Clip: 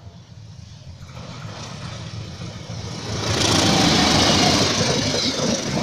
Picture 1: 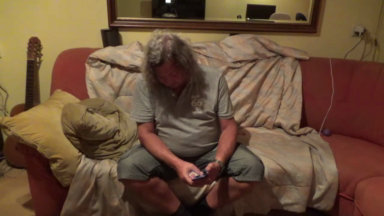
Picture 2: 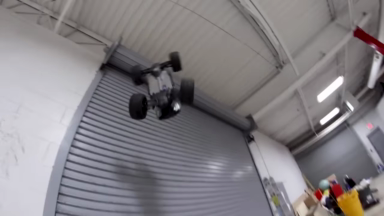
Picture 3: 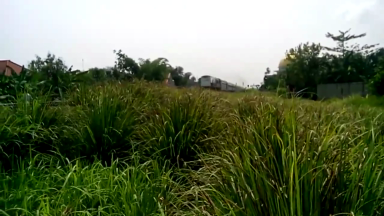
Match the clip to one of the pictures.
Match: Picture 3